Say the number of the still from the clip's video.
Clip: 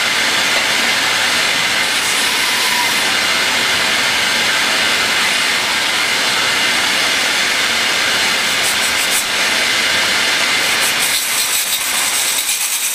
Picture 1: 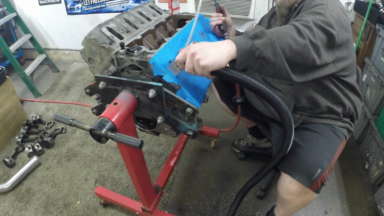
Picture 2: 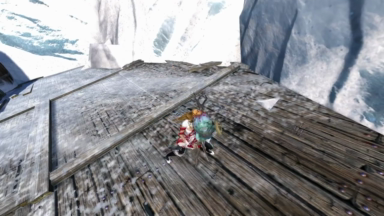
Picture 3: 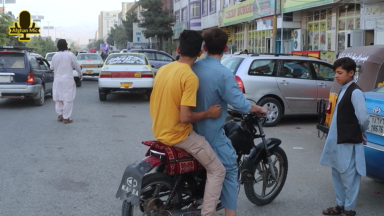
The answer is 1